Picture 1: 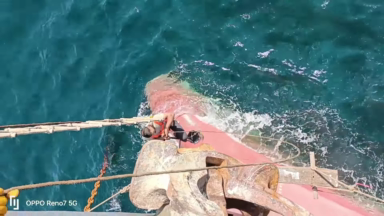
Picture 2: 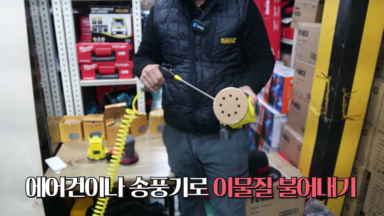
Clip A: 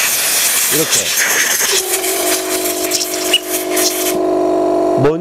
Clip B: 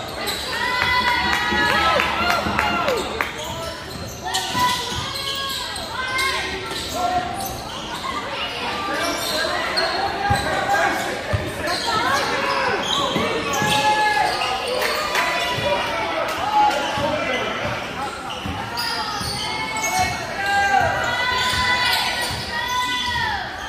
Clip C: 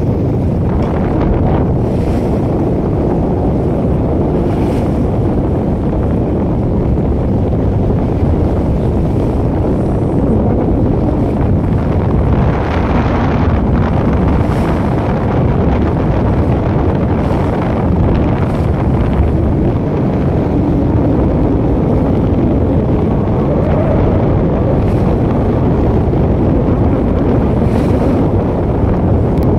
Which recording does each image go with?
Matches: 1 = C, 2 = A